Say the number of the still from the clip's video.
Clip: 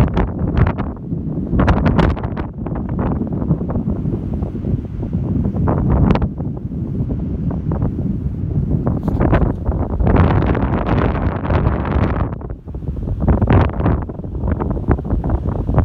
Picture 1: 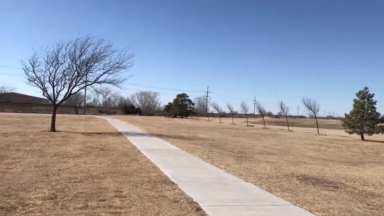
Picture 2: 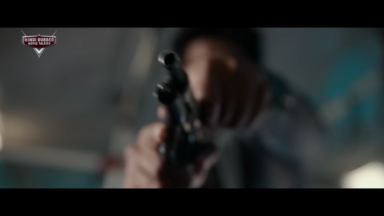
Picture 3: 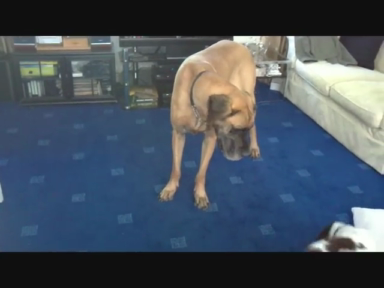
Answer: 1